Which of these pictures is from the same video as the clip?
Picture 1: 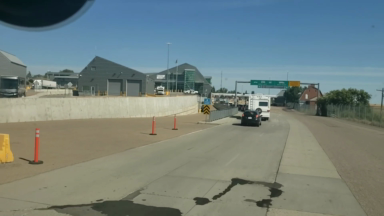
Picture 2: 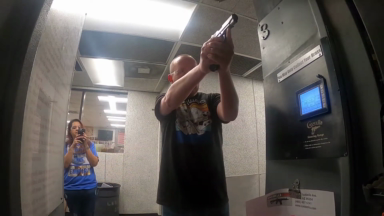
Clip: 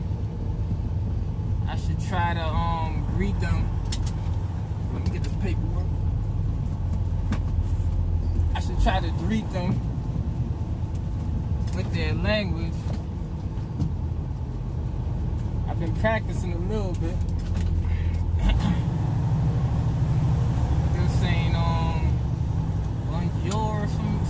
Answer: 1